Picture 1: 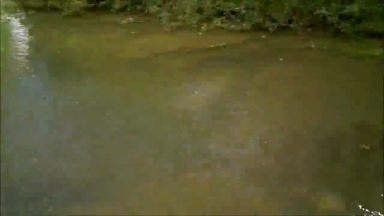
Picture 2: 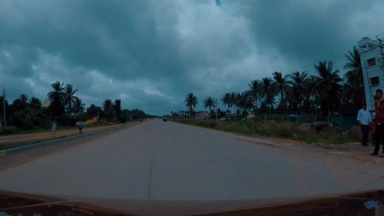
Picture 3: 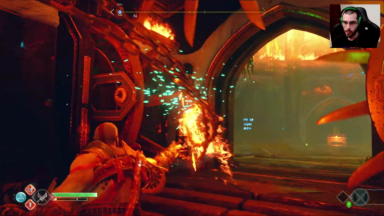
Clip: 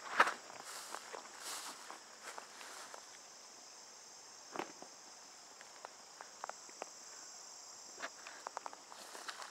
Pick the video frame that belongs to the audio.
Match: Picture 1